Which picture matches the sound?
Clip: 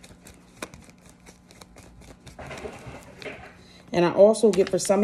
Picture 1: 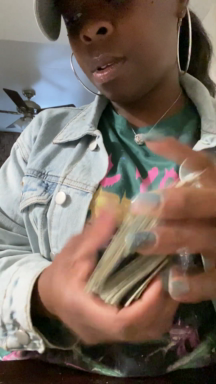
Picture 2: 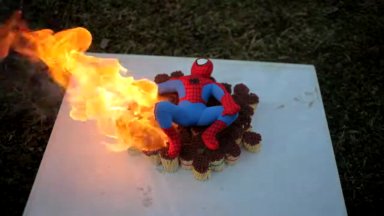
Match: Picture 1